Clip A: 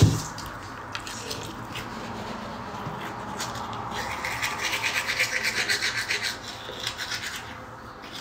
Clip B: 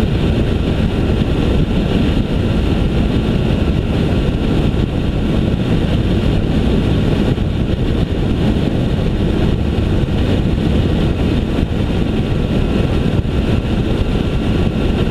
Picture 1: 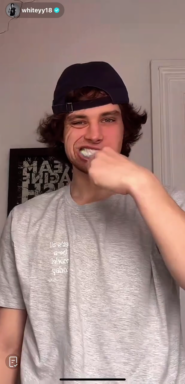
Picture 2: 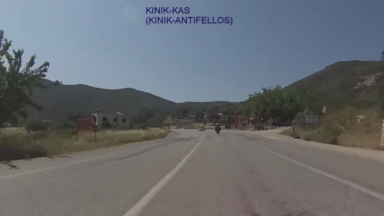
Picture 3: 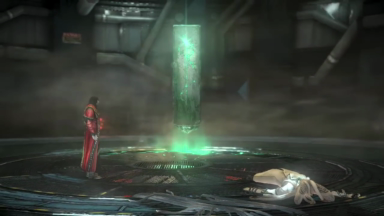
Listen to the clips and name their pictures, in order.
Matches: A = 1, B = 2